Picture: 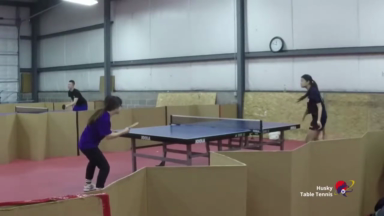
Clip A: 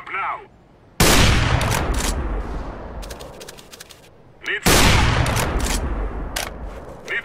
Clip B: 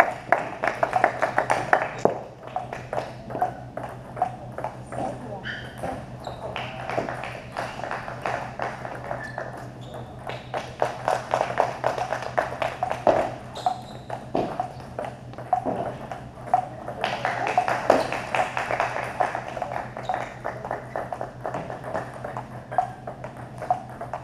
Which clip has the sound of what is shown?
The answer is B